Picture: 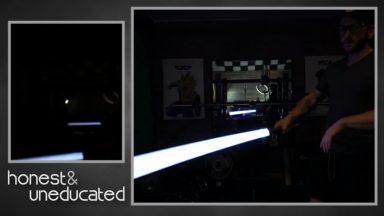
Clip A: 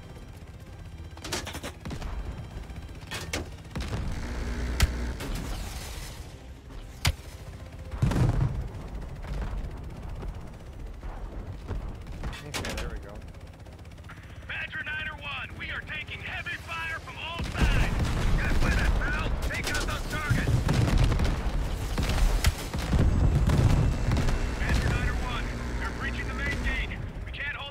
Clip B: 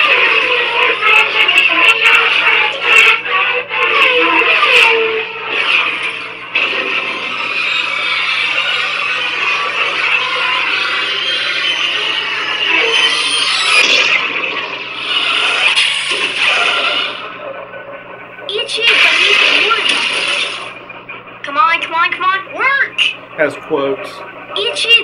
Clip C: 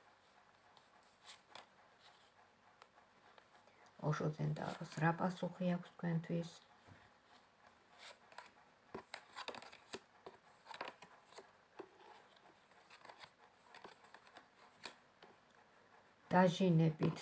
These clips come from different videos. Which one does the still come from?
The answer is B